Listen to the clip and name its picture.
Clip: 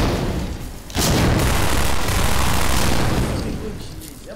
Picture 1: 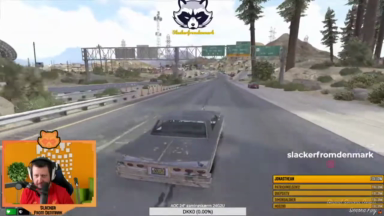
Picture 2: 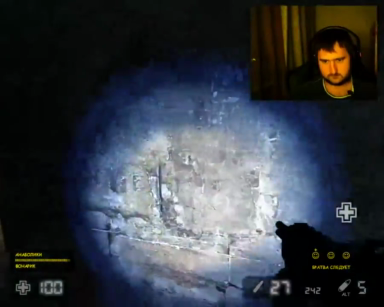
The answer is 2